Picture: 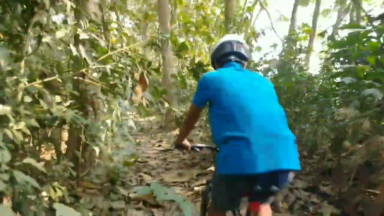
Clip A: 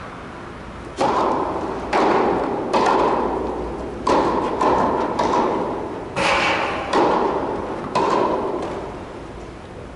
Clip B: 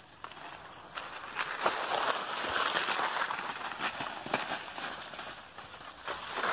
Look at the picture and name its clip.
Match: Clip B